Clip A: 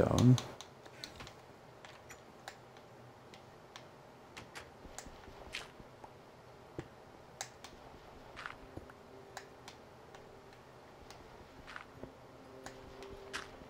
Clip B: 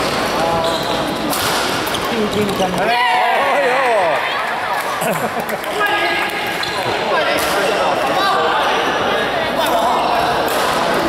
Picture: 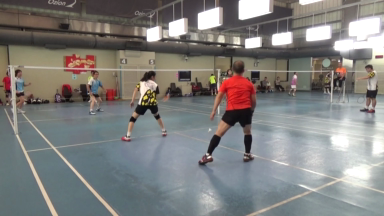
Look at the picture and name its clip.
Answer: B